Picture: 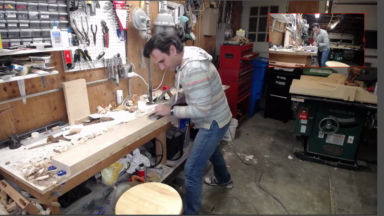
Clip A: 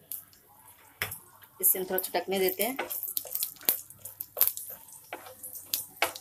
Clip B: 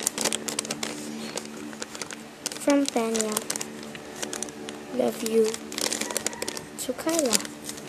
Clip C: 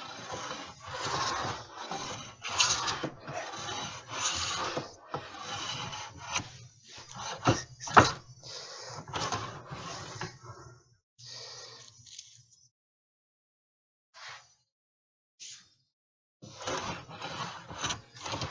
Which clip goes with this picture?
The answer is C